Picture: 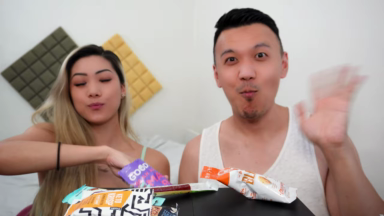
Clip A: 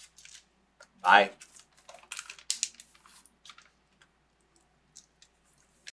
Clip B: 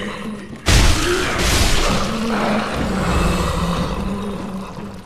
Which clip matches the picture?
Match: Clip A